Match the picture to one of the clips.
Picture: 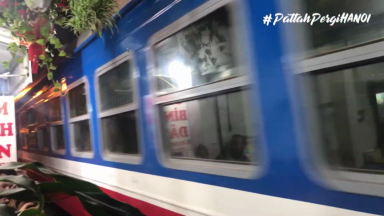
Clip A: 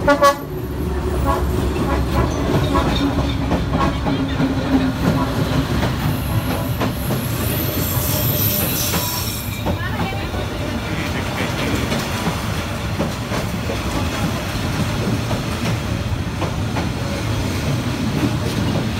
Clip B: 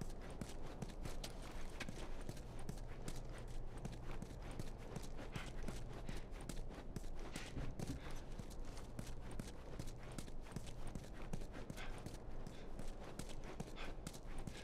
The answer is A